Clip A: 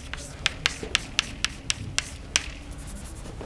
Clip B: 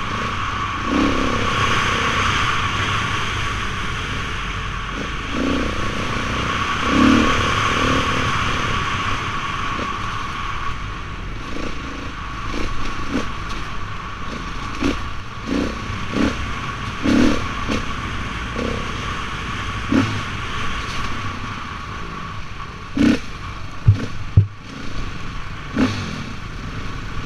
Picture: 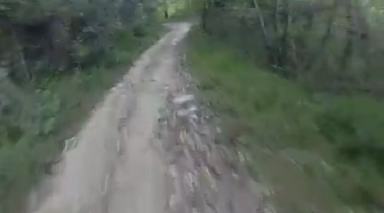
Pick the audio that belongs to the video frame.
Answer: B